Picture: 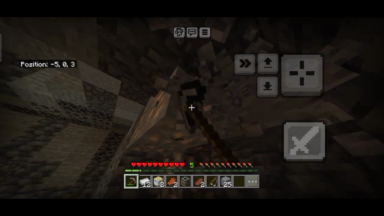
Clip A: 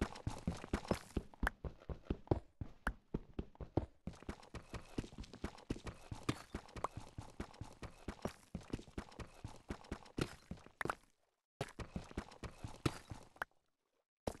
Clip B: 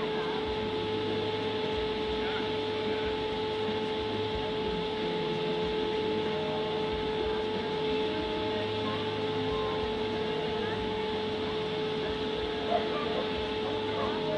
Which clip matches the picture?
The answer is A